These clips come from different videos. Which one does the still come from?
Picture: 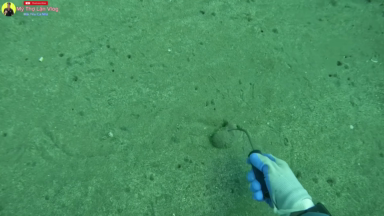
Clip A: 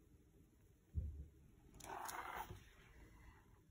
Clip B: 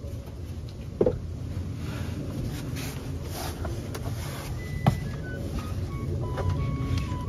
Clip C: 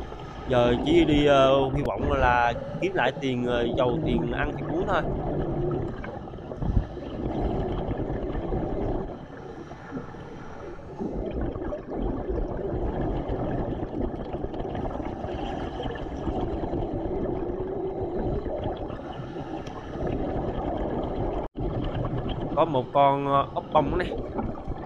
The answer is C